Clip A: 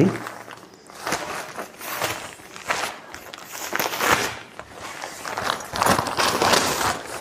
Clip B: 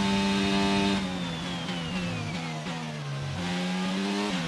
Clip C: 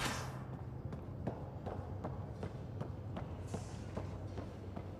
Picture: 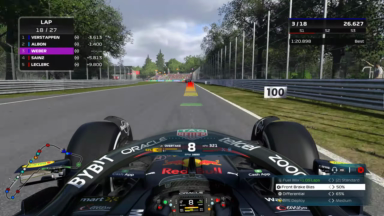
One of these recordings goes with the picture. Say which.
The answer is B